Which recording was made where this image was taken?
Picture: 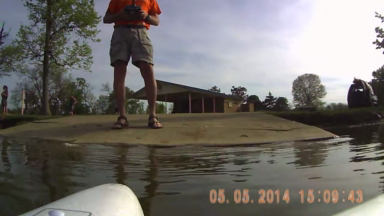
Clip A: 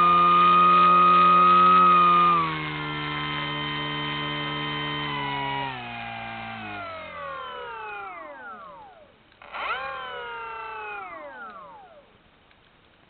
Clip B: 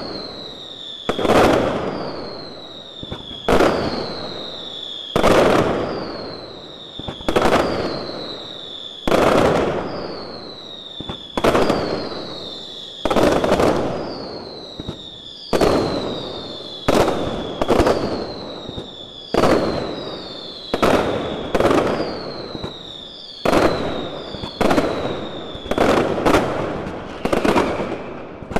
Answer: A